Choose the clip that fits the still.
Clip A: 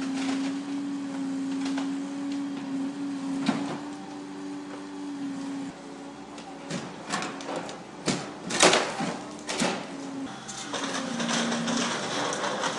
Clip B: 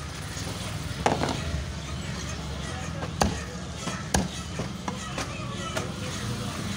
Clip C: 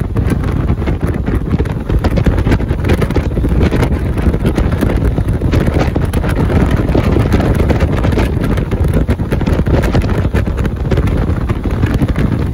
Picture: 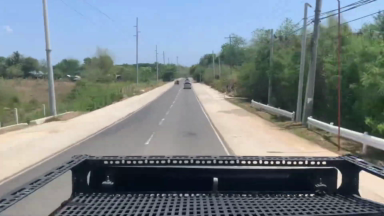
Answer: C